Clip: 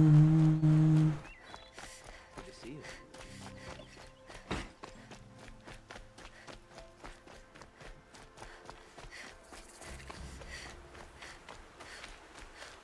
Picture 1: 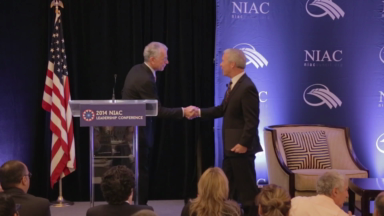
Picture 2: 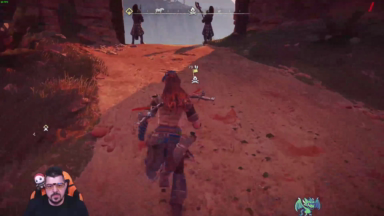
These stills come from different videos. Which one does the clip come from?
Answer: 2